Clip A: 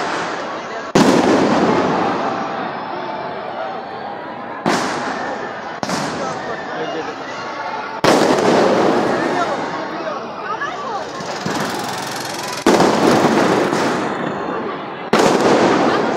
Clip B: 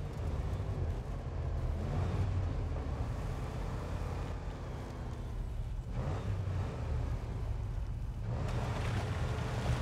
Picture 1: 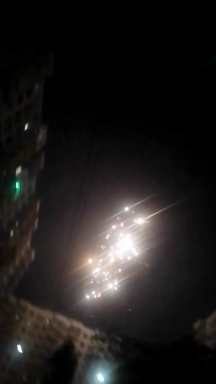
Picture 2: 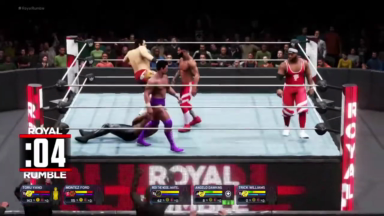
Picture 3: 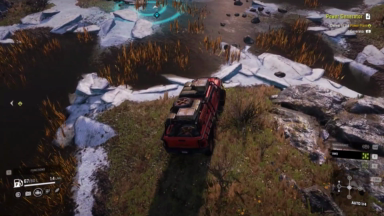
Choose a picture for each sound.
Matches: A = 1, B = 3